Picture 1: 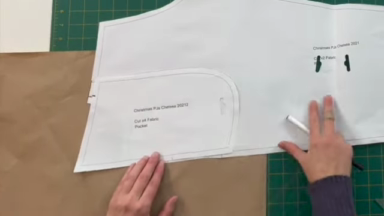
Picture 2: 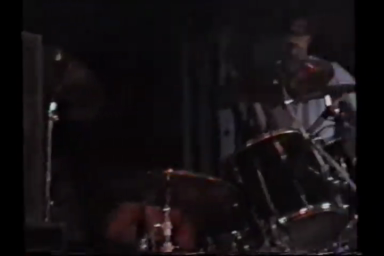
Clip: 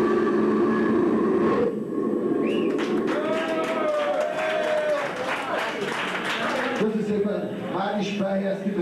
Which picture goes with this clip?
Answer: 2